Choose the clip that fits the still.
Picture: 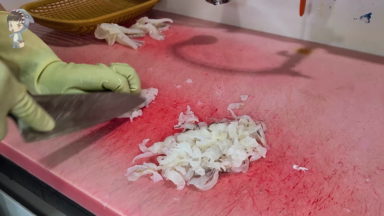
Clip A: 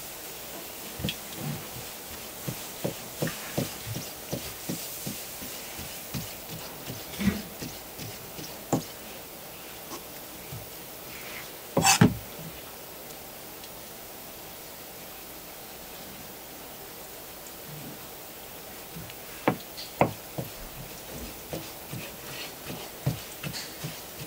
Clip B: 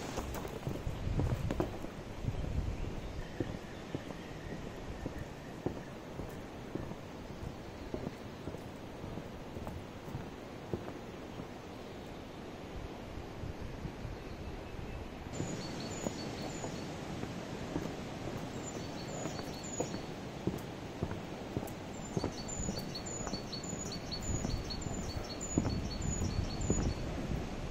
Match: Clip A